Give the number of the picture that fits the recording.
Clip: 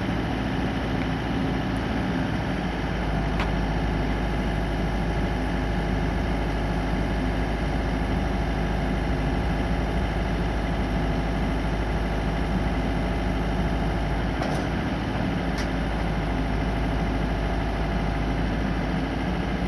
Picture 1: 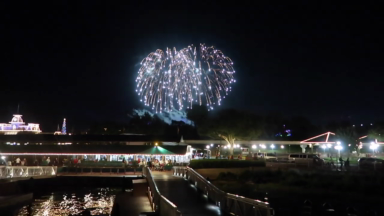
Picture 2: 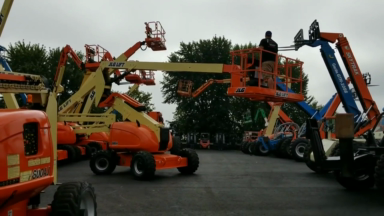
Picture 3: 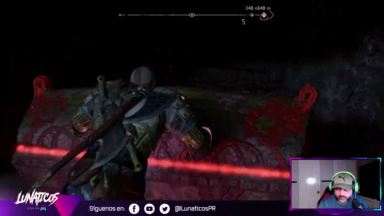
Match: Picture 2